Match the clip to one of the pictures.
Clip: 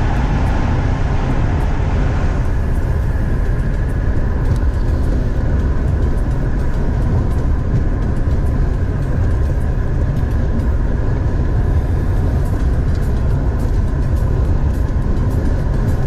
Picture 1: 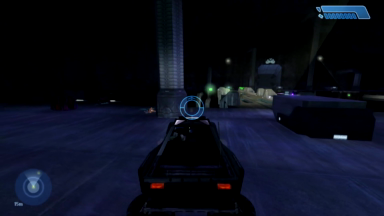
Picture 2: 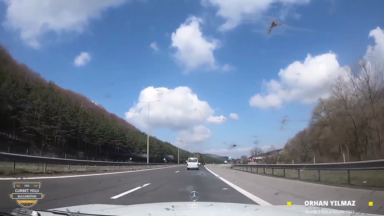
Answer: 2